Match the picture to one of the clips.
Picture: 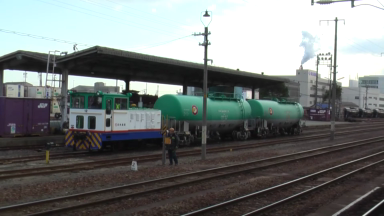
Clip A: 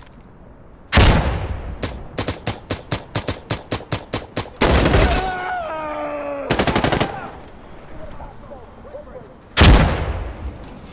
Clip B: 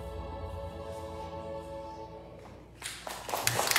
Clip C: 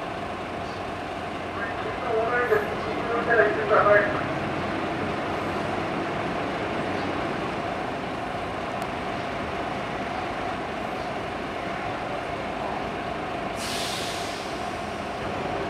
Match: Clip C